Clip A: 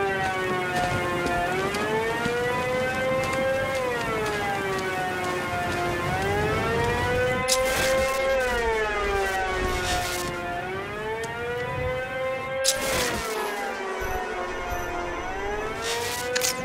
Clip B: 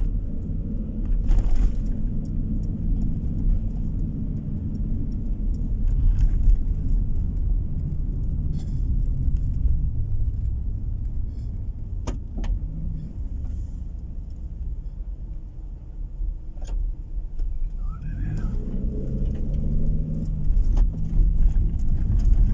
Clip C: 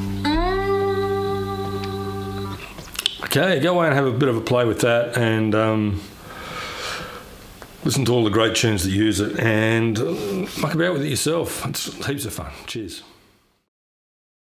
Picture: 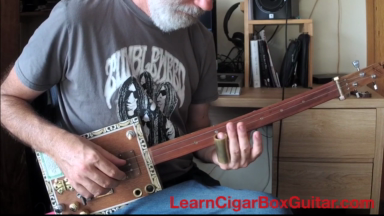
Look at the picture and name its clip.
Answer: C